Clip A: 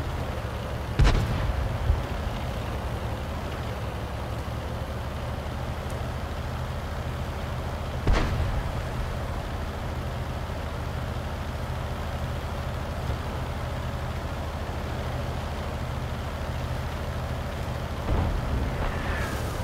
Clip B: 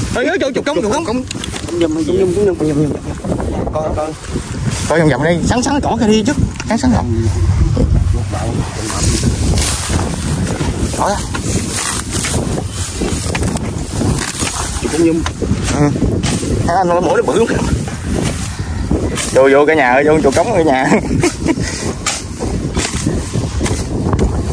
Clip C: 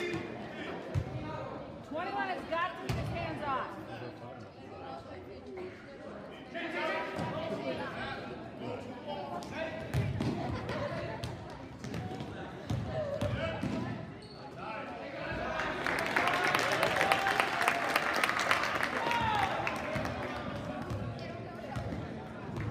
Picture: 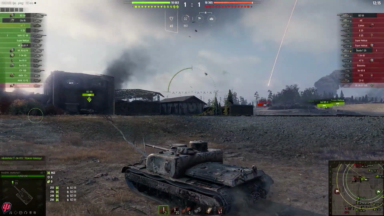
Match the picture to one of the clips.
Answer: A